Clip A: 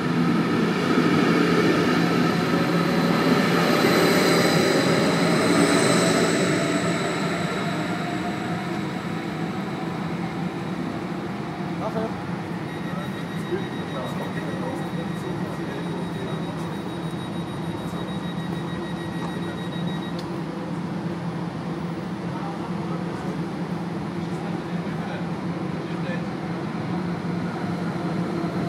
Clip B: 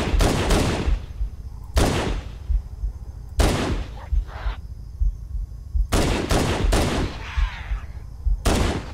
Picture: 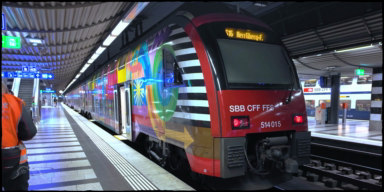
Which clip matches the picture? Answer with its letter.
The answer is A